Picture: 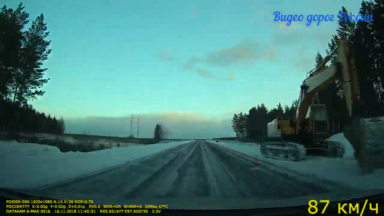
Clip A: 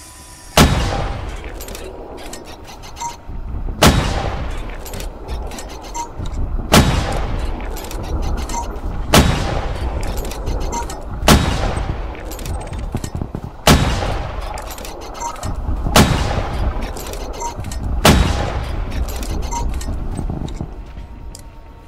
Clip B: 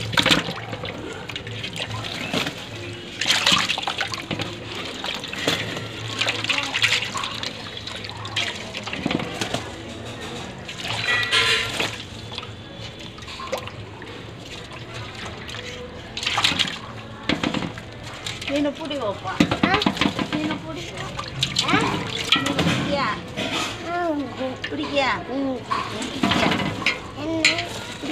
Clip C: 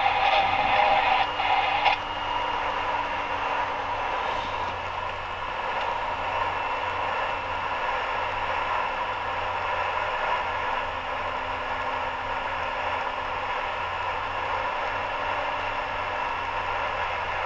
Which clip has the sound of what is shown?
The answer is C